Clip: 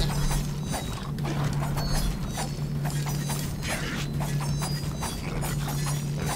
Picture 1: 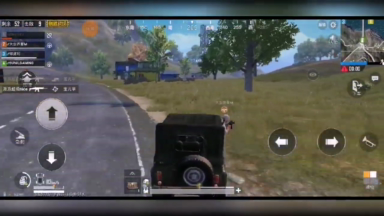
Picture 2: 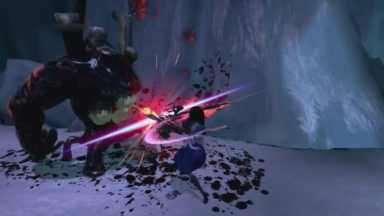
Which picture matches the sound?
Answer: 2